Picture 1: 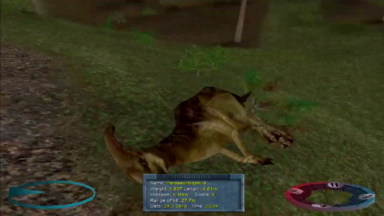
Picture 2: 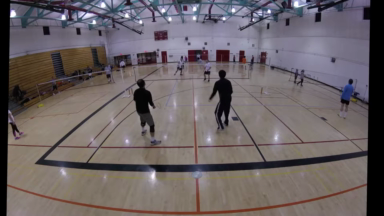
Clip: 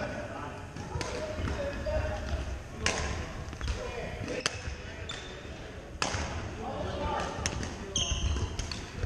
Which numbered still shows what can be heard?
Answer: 2